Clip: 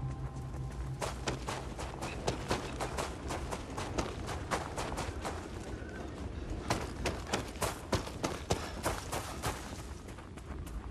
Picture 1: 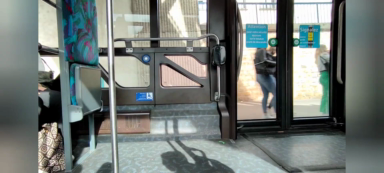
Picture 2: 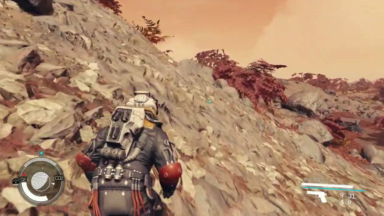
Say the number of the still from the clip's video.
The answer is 2